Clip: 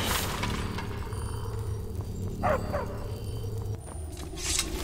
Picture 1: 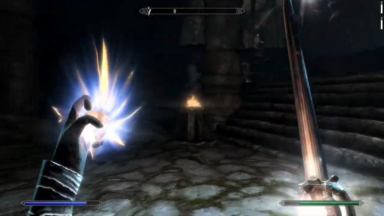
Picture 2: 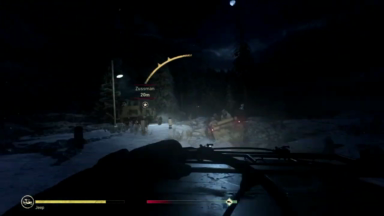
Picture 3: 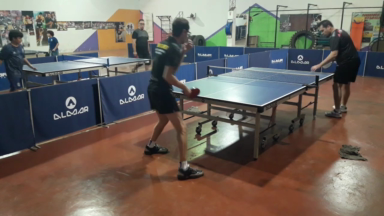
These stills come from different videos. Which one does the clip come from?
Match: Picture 1